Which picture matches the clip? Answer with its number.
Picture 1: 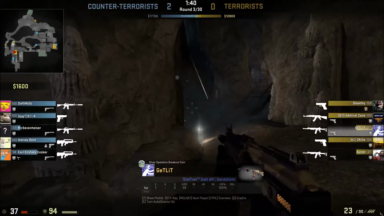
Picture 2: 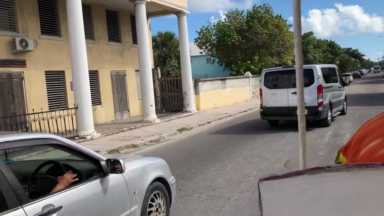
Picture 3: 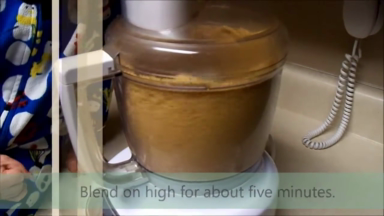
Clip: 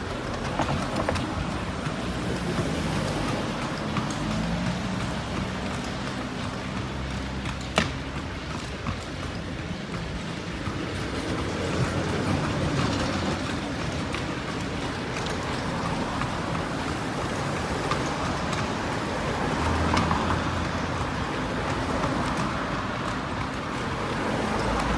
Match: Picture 2